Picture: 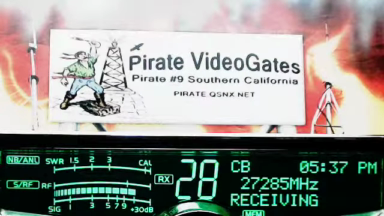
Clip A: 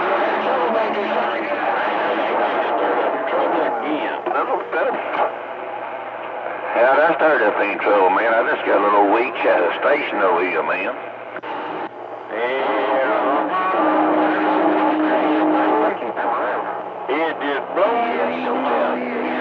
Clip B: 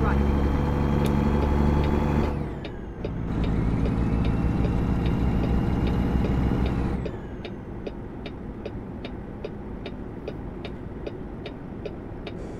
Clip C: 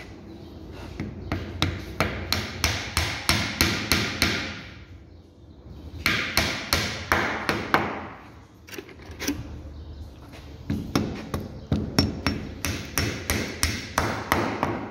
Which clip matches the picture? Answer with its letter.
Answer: A